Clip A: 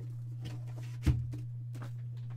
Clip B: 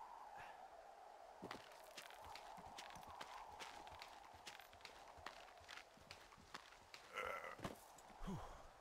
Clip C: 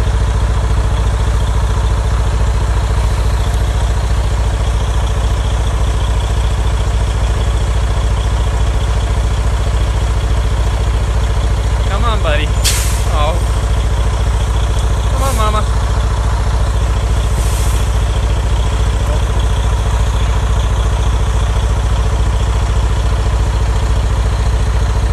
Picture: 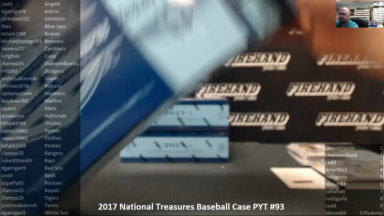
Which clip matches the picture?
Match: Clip A